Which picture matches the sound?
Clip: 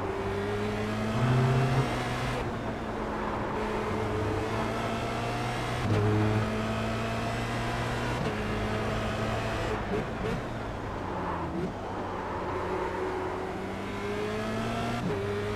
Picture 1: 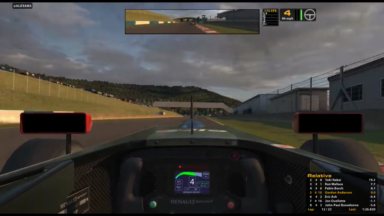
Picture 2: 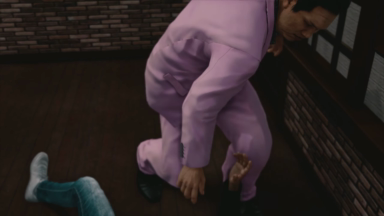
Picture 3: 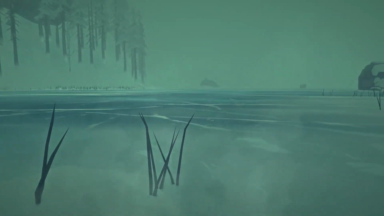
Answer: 1